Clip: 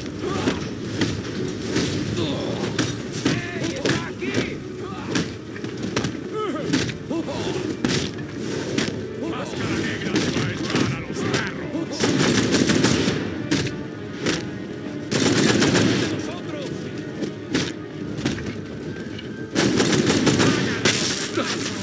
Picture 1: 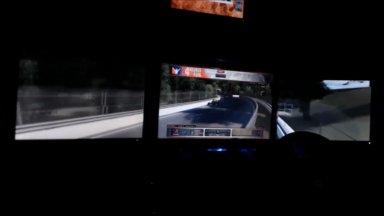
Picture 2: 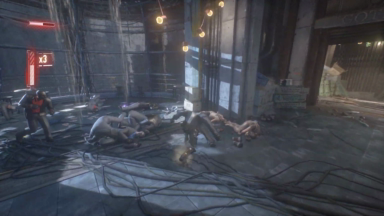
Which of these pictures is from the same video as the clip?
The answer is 2